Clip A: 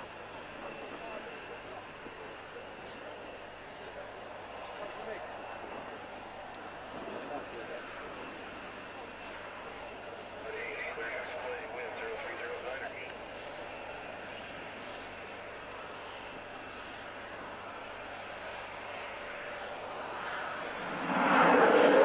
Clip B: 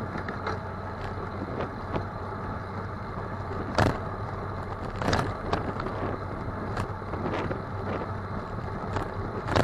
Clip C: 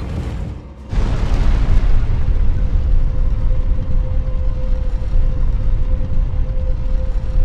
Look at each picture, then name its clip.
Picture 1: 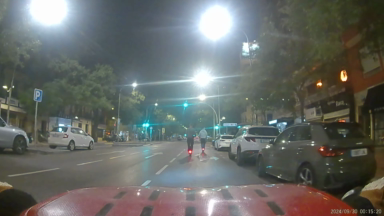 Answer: B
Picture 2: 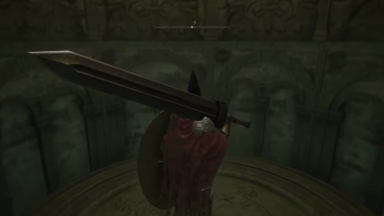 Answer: C